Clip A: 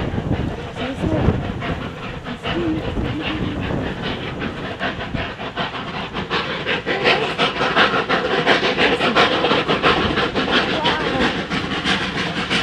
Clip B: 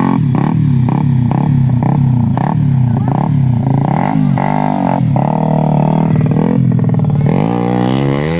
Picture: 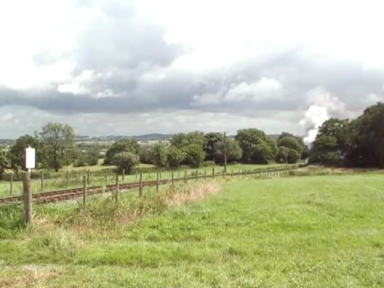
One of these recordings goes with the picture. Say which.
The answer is A